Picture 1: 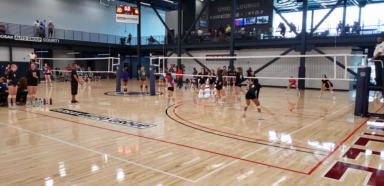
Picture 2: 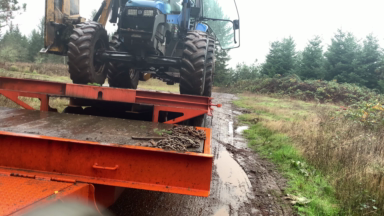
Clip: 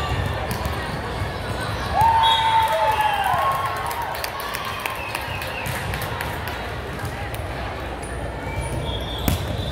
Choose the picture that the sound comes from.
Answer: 1